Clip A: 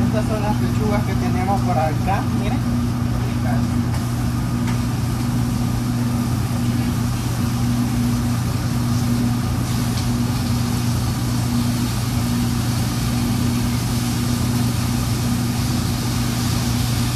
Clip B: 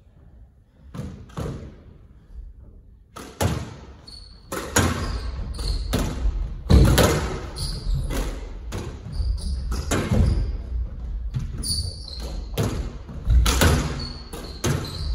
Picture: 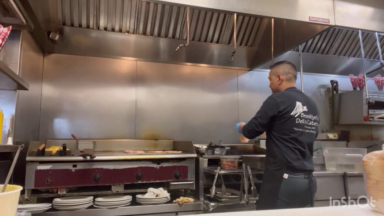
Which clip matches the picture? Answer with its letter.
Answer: A